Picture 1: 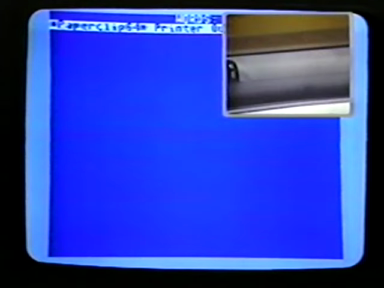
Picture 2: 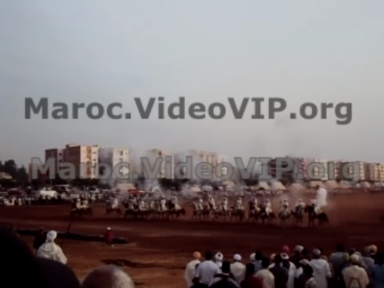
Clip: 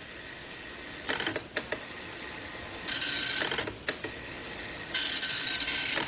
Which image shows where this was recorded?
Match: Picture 1